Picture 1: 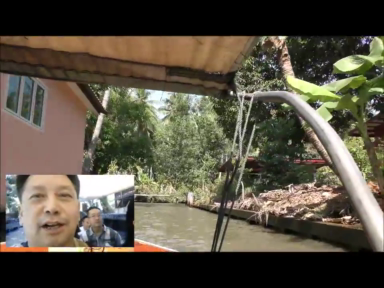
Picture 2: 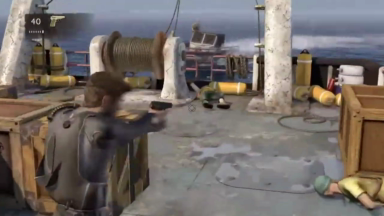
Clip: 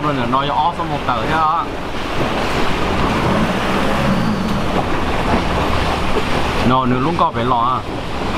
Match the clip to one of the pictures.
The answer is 1